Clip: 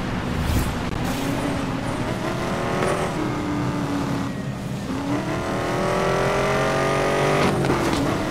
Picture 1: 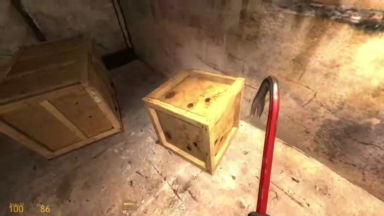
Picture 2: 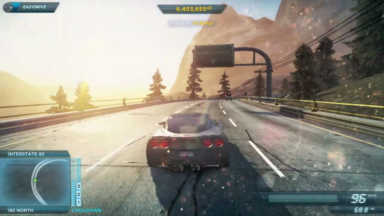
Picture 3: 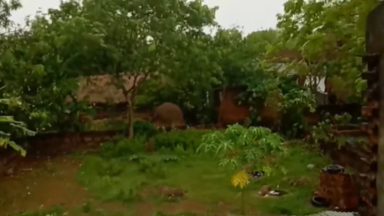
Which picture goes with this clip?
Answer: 2